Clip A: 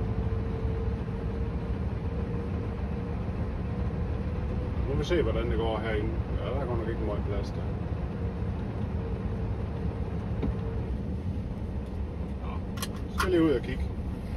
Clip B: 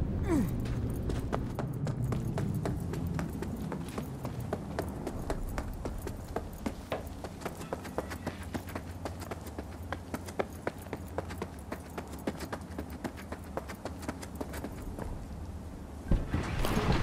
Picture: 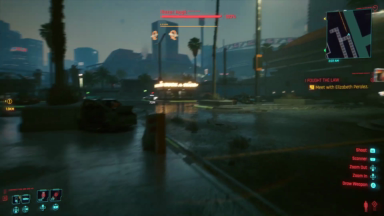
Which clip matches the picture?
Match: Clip B